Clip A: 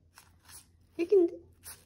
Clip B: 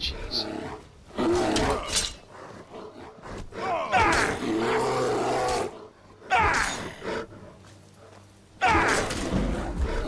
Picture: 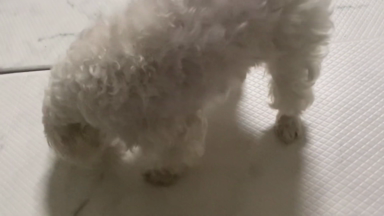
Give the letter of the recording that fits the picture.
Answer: A